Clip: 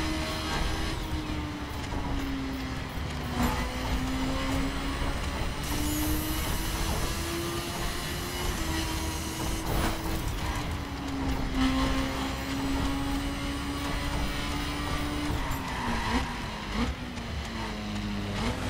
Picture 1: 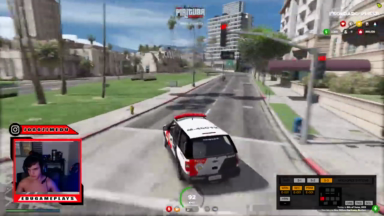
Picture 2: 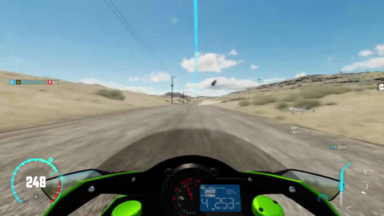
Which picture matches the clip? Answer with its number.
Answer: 2